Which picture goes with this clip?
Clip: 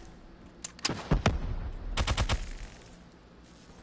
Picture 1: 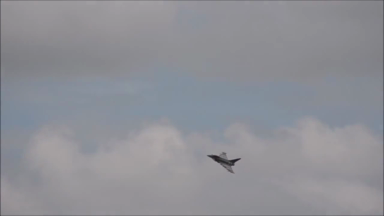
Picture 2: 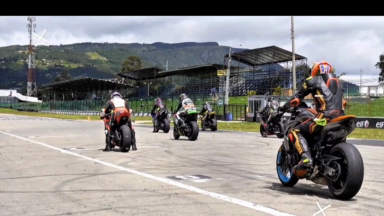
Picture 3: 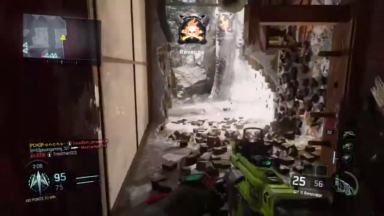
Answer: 3